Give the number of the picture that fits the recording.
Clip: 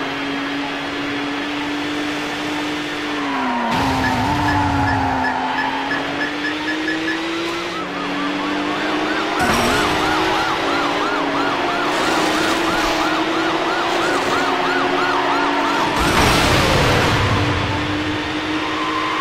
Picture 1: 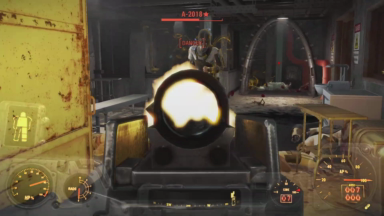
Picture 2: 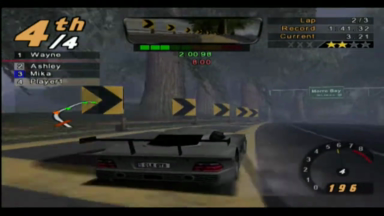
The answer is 2